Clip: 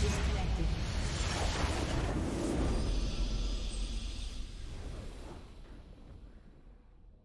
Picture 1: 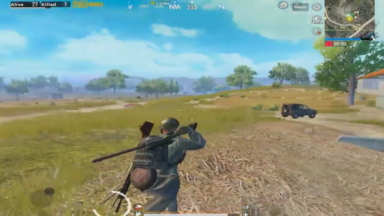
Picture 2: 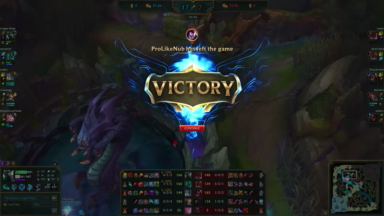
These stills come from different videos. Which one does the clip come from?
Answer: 2